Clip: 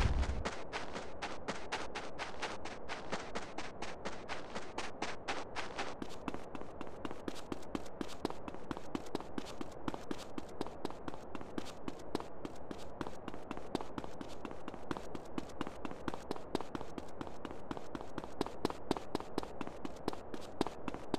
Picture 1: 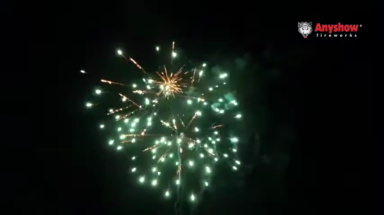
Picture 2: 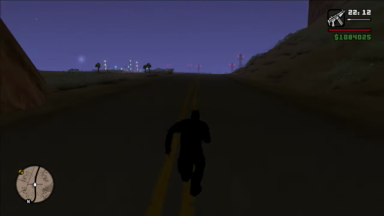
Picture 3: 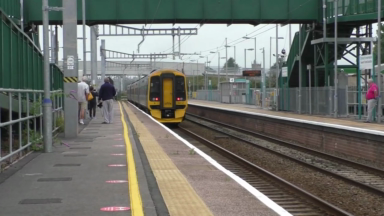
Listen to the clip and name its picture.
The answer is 2